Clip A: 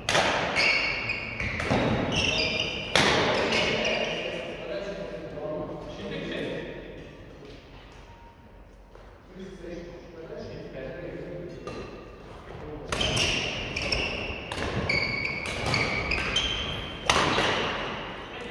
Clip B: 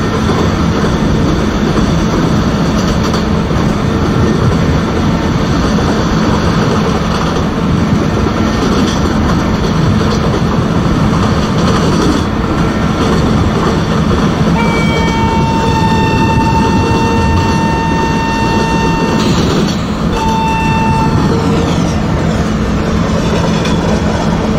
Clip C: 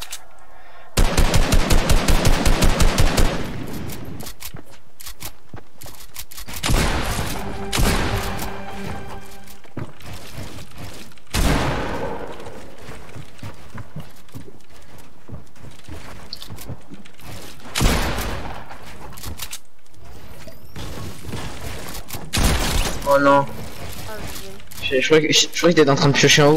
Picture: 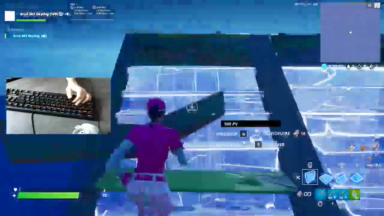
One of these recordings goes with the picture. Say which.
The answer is C